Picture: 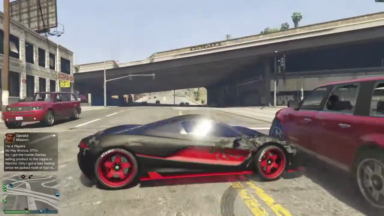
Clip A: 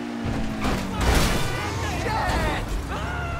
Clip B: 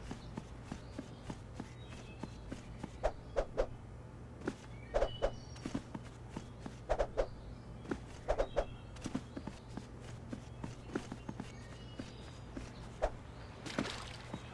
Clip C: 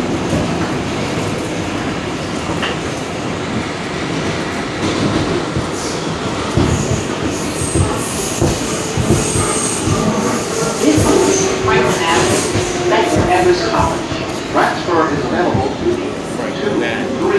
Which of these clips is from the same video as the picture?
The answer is A